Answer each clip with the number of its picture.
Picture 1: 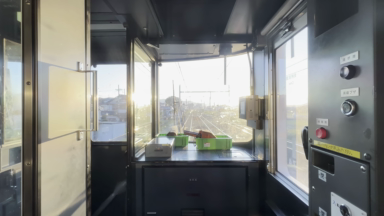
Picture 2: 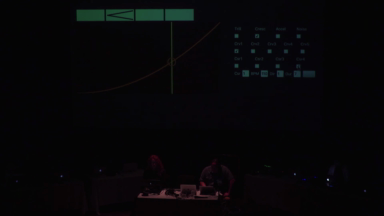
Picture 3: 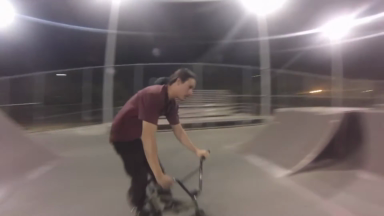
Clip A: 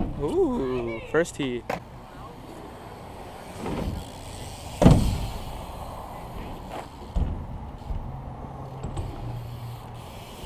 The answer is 3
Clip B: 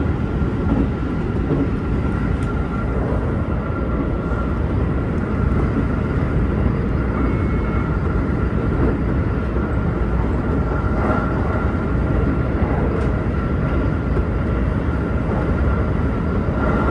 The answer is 1